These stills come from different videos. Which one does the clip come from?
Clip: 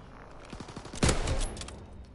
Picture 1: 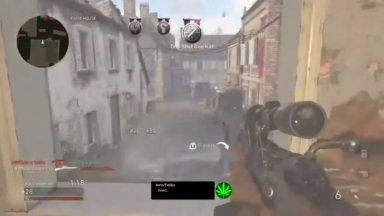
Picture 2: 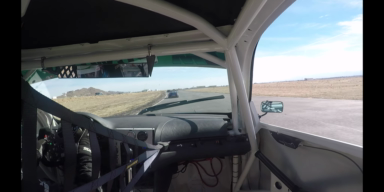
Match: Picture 1